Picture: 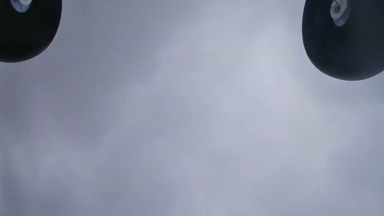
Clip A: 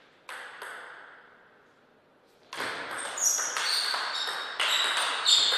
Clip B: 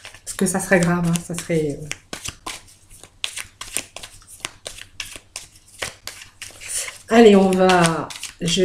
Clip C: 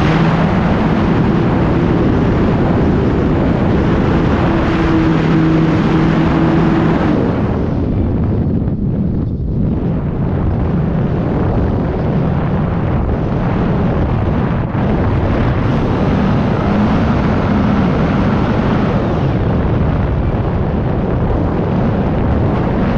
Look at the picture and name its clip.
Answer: C